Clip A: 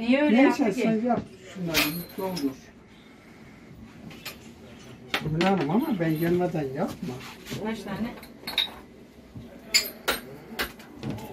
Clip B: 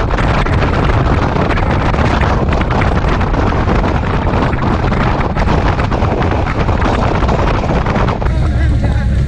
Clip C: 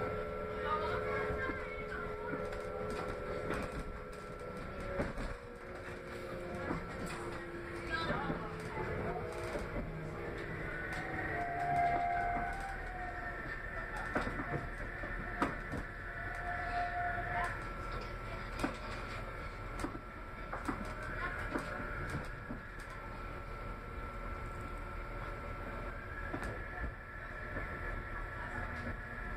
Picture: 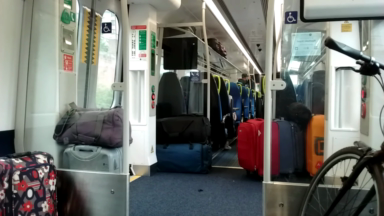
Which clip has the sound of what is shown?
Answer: C